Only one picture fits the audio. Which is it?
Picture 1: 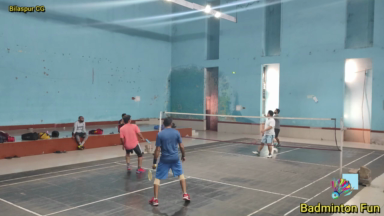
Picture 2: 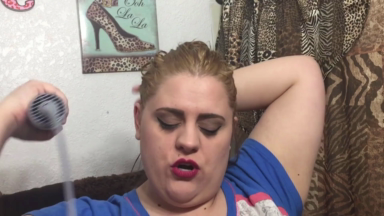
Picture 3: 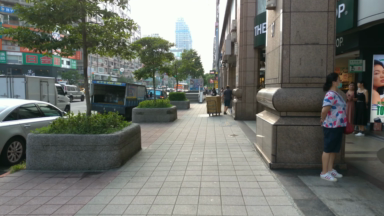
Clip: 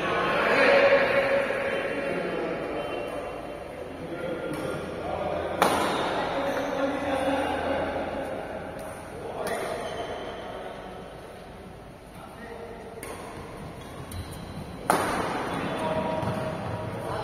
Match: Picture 1